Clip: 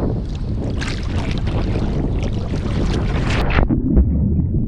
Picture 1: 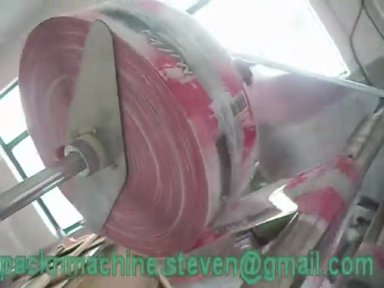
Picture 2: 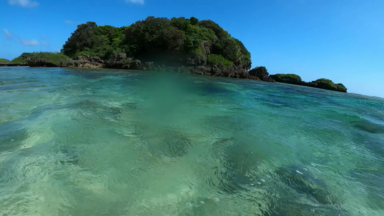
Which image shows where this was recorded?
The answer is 2